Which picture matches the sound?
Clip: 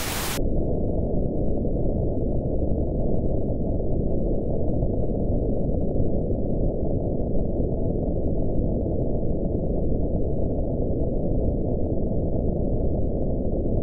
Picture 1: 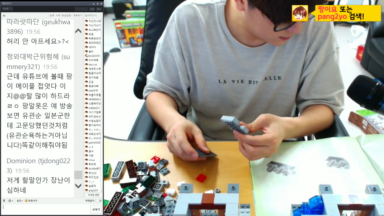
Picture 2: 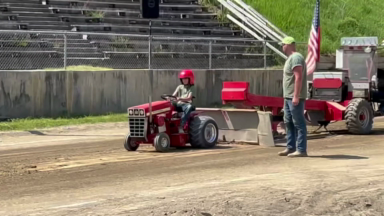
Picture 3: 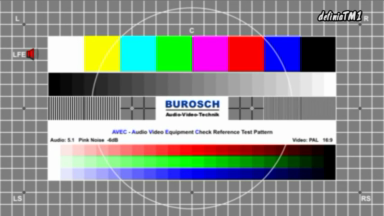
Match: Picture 3